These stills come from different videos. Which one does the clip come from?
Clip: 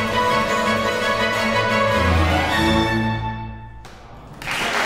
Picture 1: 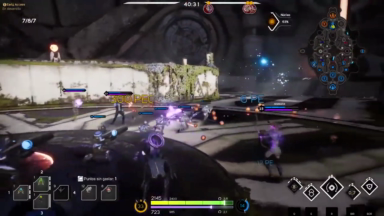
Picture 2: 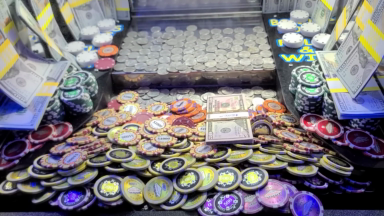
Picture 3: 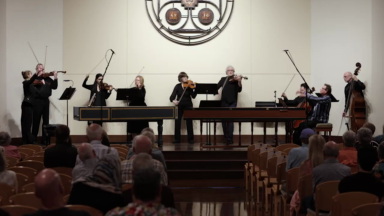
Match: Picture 3